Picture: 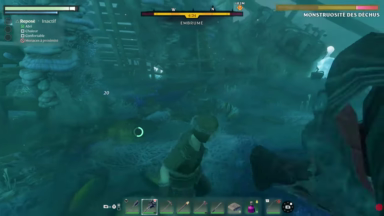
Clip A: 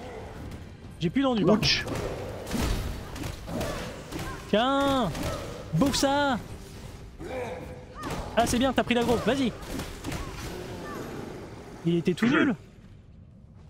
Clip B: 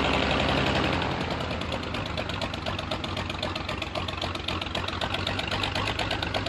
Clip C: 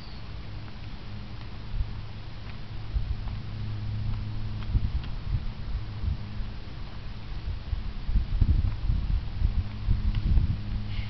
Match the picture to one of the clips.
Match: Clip A